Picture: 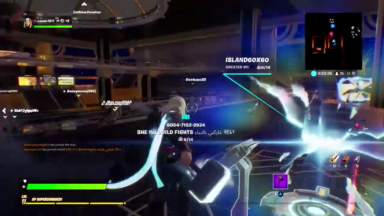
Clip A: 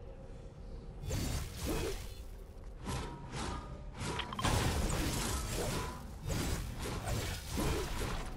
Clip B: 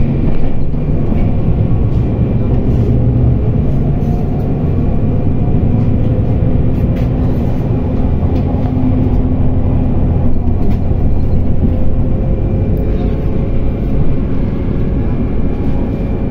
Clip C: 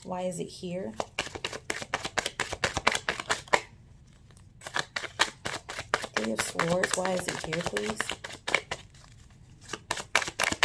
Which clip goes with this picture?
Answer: A